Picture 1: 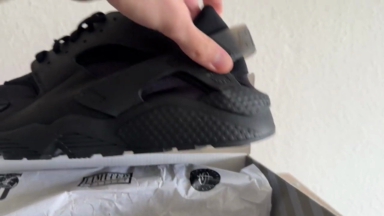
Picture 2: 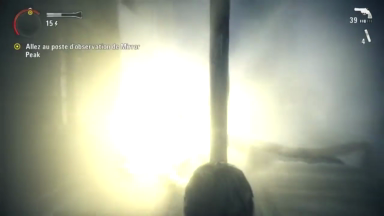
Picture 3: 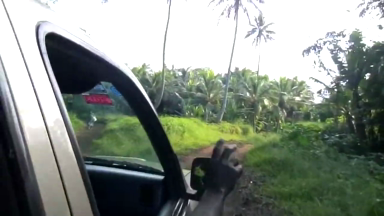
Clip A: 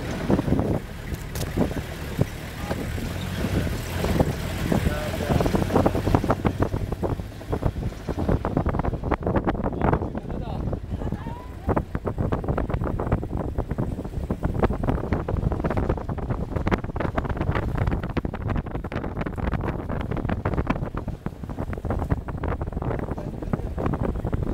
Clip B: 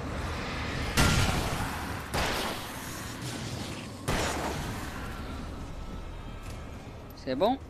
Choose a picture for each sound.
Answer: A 3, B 2